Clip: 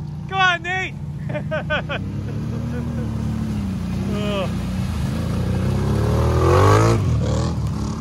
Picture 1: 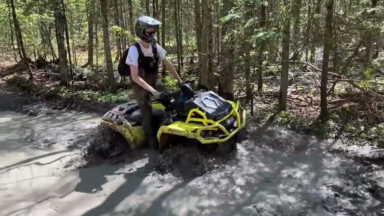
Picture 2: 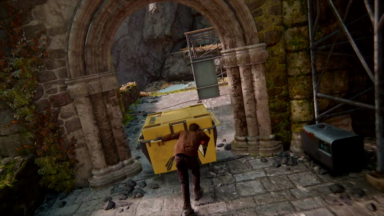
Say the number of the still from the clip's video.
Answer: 1